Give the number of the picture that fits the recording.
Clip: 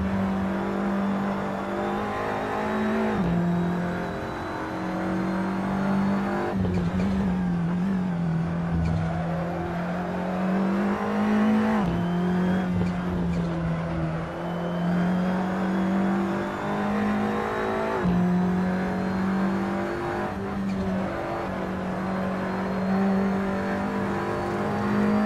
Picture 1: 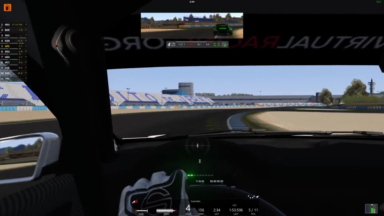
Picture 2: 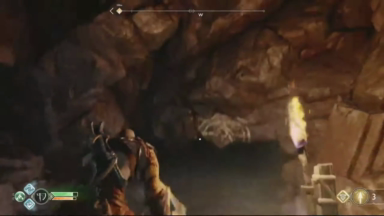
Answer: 1